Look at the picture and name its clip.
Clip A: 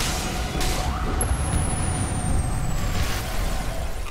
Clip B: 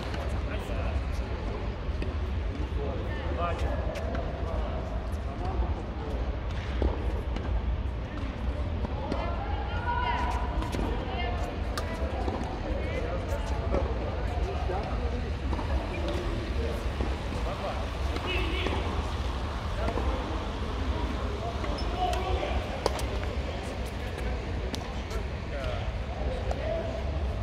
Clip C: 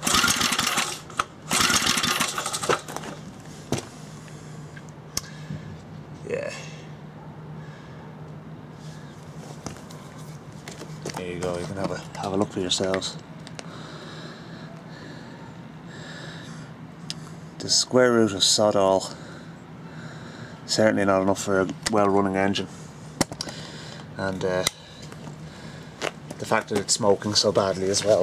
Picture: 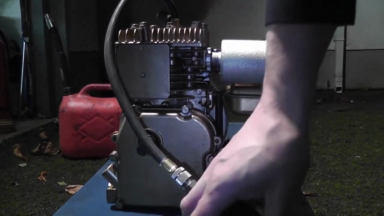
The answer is C